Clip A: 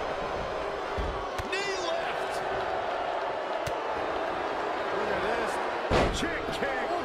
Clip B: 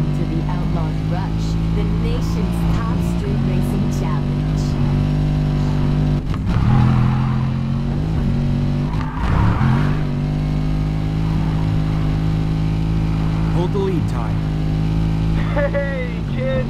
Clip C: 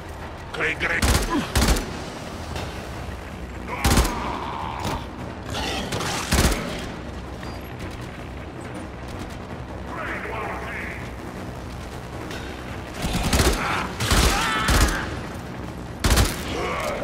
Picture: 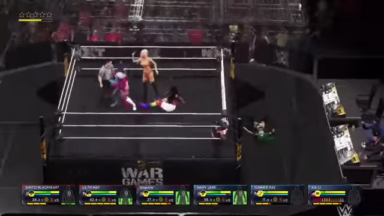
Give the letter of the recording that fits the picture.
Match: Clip A